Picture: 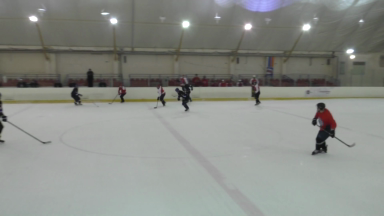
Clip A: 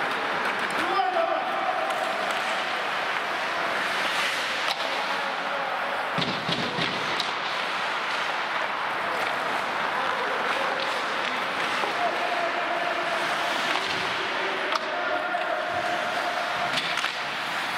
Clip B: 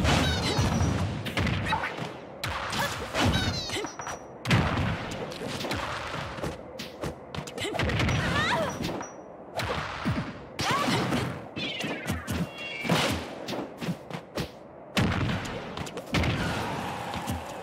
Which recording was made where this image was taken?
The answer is A